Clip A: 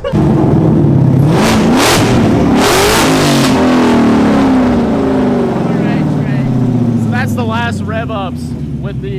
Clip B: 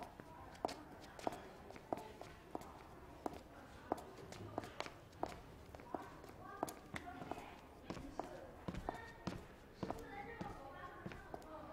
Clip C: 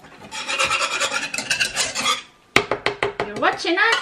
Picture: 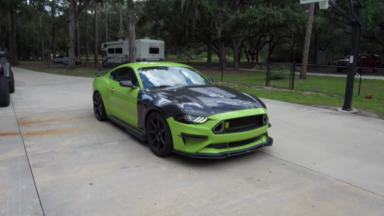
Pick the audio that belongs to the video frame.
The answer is A